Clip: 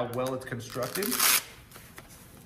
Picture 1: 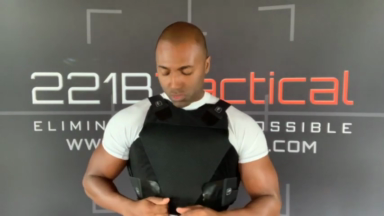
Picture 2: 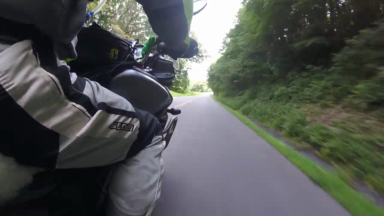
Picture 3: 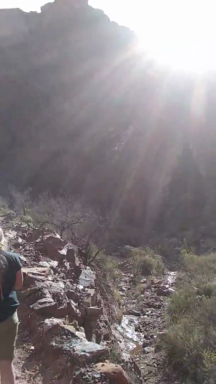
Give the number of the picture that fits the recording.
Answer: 1